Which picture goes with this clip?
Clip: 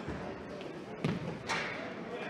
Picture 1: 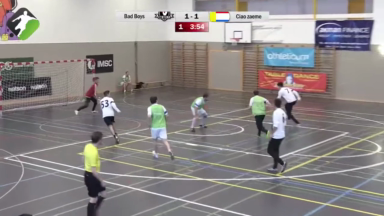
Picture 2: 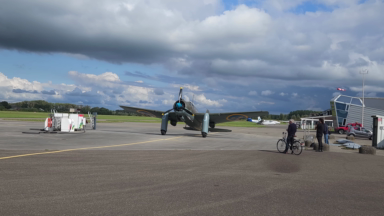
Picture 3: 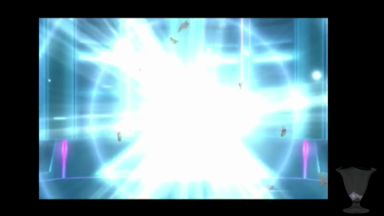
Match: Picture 1